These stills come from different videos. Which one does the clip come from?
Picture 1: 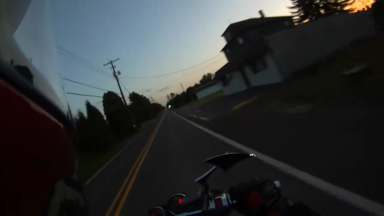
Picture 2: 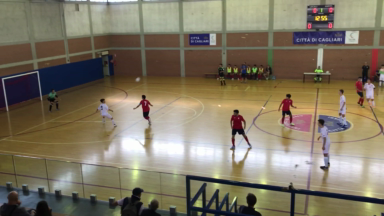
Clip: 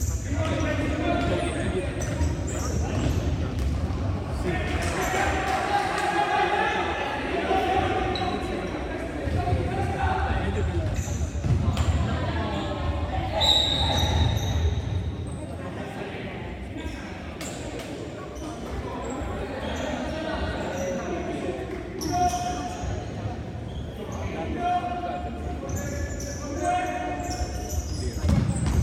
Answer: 2